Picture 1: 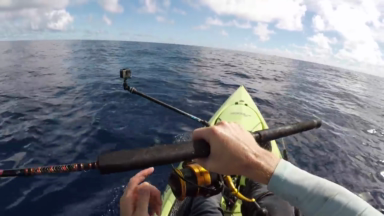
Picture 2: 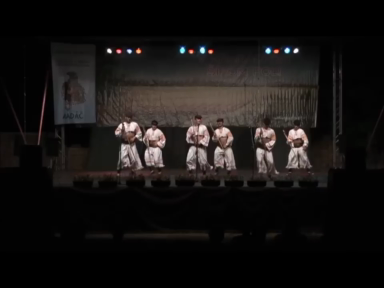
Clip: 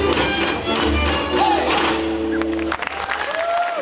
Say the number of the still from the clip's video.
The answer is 2